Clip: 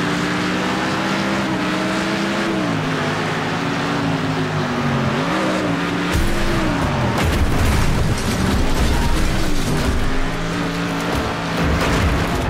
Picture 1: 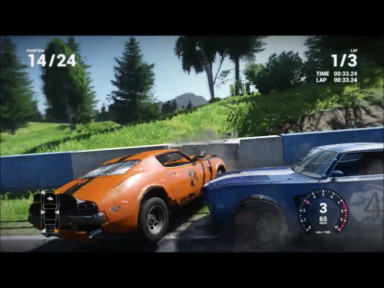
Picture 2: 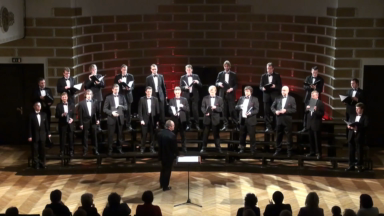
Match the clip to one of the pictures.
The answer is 1